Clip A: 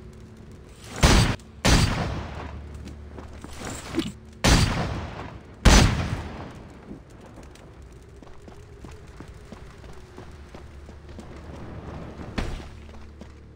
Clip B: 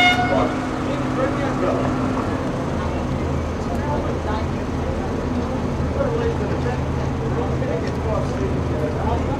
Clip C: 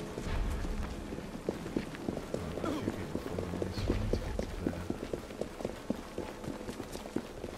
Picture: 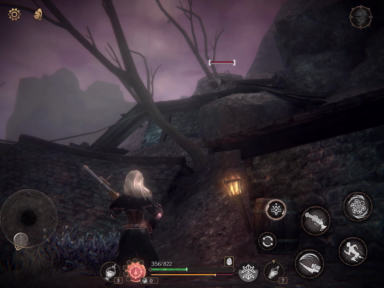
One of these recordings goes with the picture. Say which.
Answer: A